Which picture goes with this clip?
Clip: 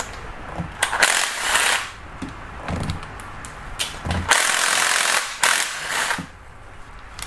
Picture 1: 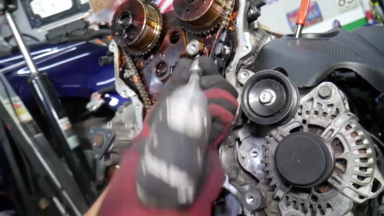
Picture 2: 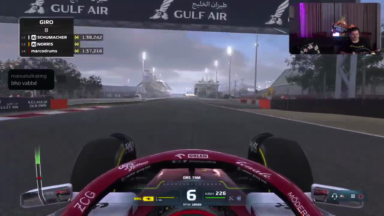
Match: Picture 1